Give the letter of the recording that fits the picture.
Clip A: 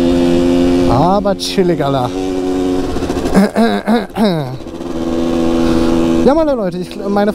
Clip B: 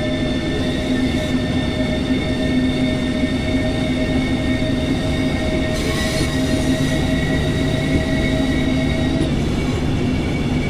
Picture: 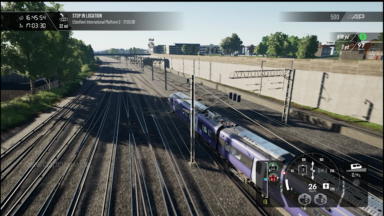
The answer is B